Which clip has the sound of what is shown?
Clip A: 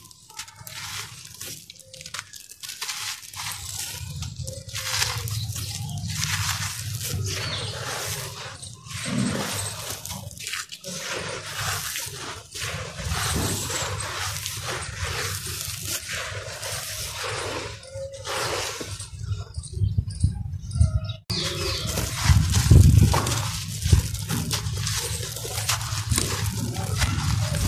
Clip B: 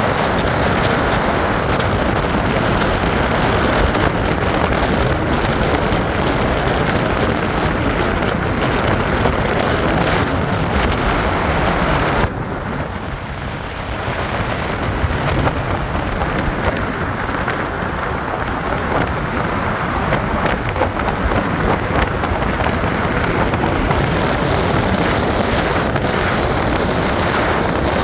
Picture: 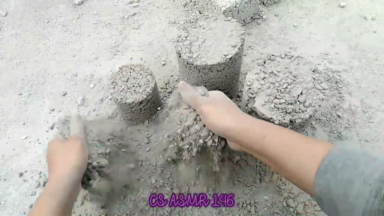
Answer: A